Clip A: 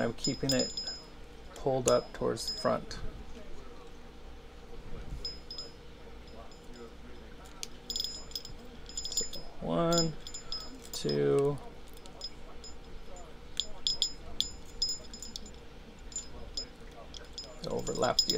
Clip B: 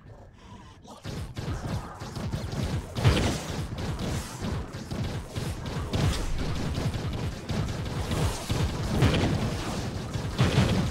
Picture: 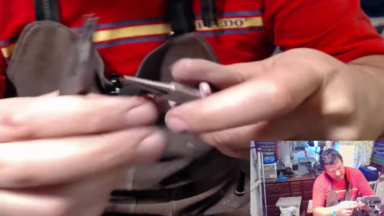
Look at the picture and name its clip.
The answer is A